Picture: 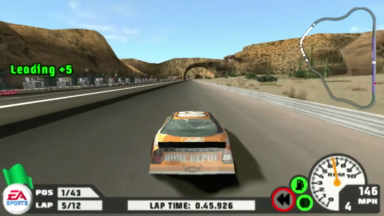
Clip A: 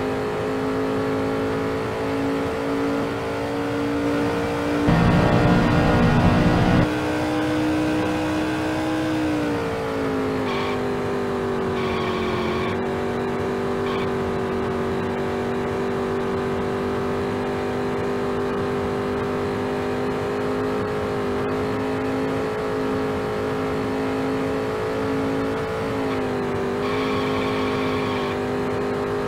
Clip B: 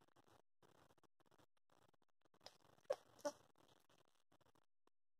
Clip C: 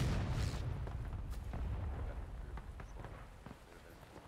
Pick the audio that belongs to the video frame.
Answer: A